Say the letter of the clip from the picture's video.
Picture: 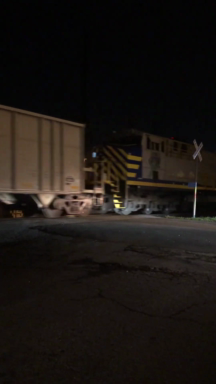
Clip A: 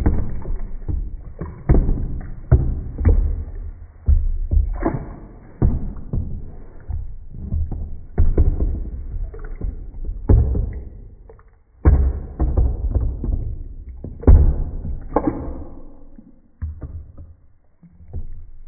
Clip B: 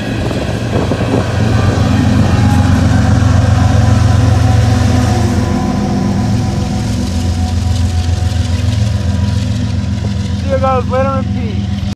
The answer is B